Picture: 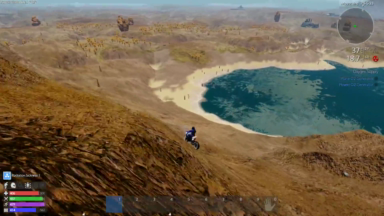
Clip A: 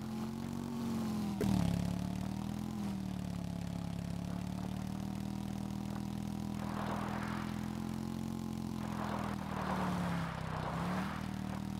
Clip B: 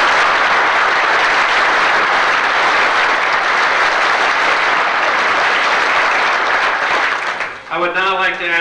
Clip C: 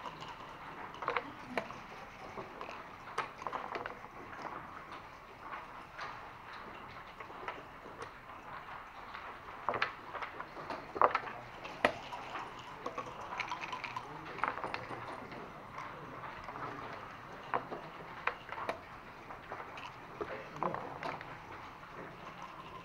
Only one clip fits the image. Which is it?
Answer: A